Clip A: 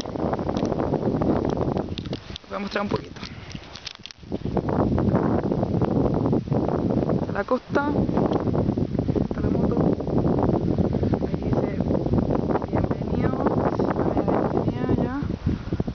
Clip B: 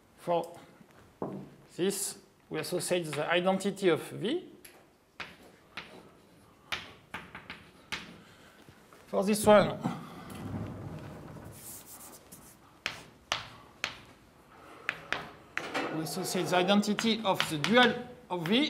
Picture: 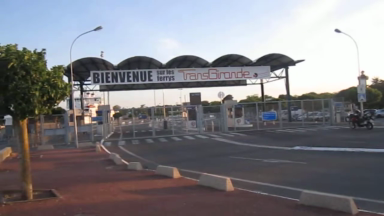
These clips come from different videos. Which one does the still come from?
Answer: A